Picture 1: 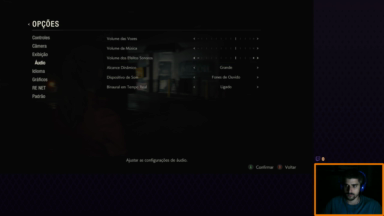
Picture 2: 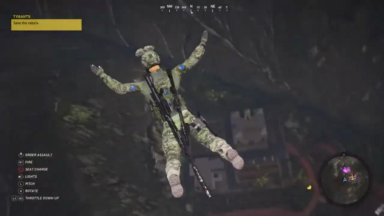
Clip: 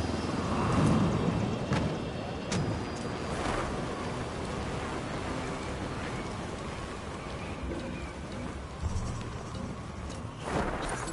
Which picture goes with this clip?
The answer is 2